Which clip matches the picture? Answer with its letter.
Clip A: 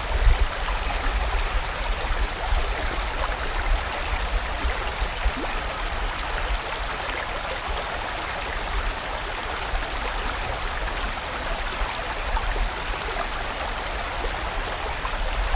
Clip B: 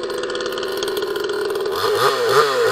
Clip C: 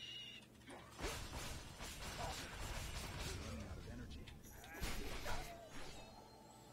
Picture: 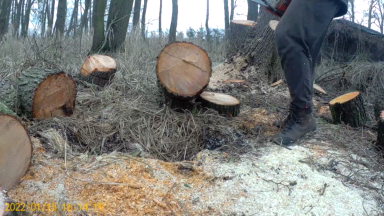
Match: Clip B